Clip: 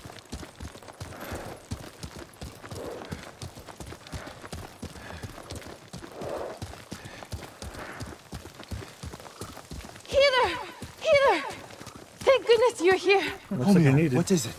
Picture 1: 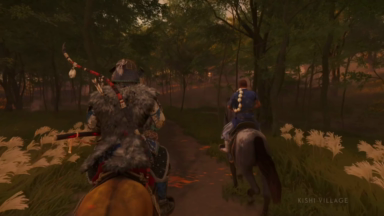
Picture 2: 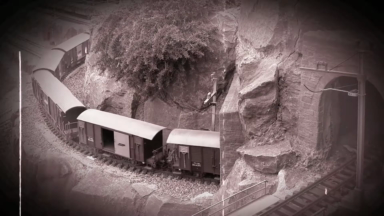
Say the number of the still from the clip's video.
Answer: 1